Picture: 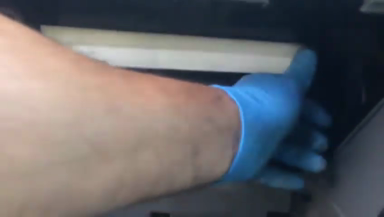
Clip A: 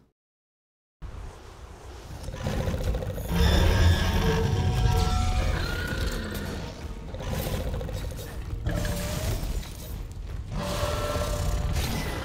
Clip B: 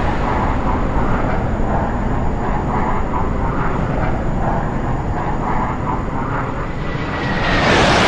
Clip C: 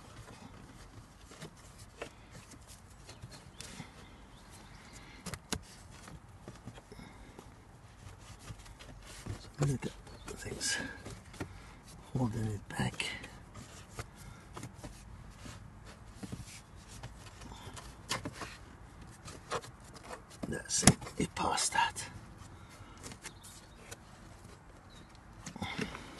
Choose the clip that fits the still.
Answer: C